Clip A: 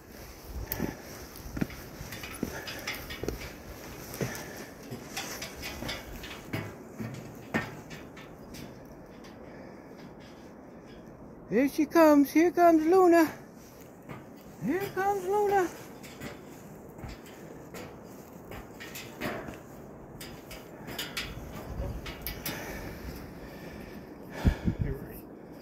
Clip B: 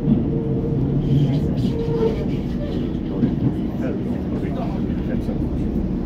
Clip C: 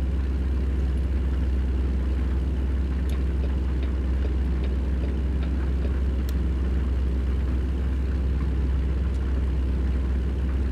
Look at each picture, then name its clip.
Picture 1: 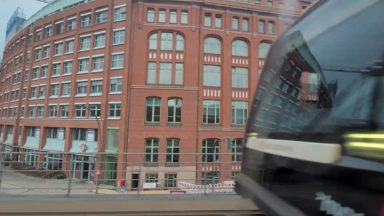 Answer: B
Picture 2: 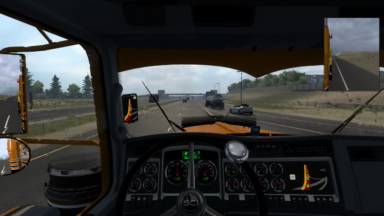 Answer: C